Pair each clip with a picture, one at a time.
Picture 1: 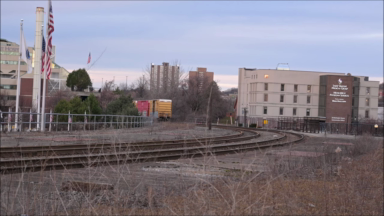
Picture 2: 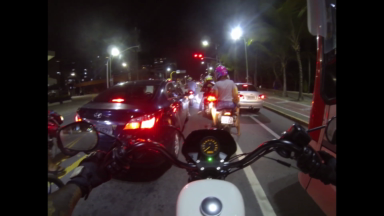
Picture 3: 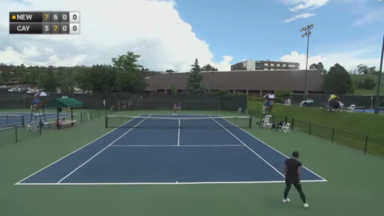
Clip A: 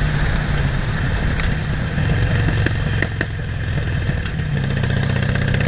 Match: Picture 2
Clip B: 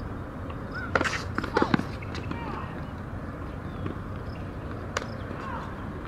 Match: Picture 3